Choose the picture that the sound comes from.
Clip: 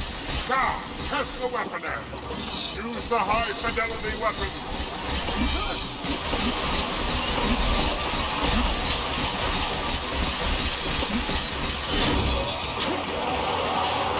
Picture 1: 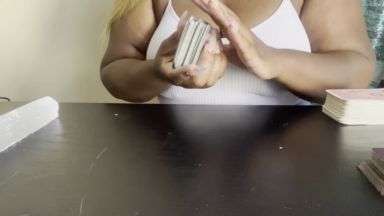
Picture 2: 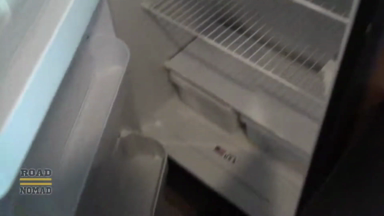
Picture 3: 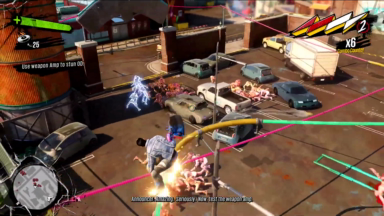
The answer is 3